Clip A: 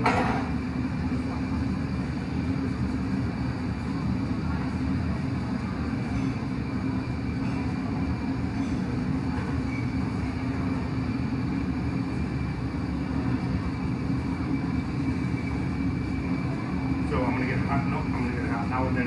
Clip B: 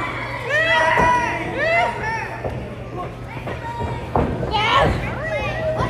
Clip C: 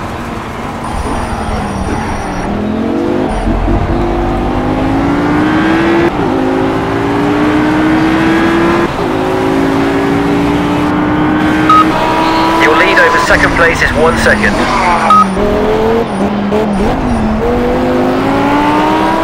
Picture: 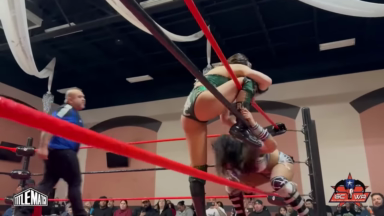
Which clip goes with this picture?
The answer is B